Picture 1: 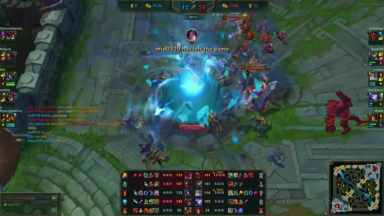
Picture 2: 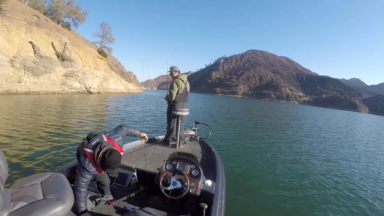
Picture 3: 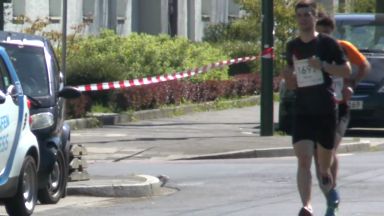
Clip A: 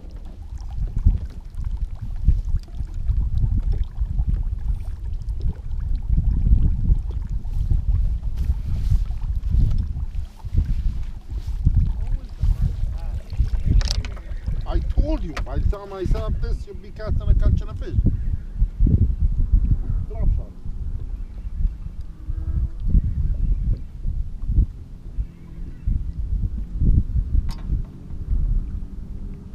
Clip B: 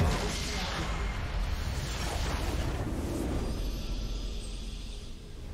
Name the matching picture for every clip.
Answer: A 2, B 1